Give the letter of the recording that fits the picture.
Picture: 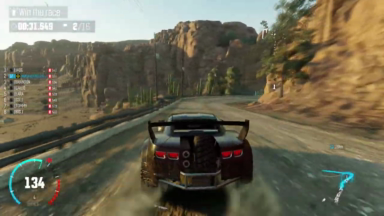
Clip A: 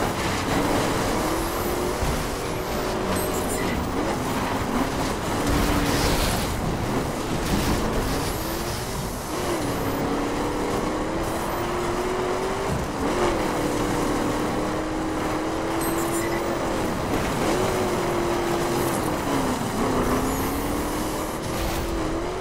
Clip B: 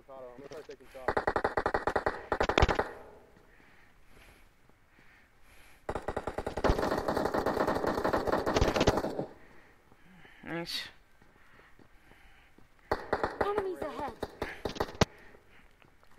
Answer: A